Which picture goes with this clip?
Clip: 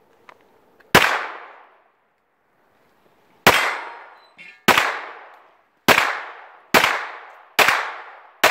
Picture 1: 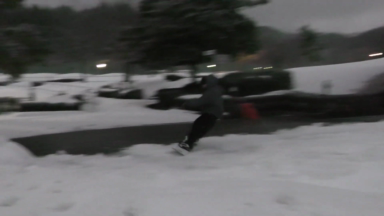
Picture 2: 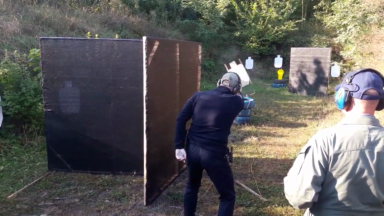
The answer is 2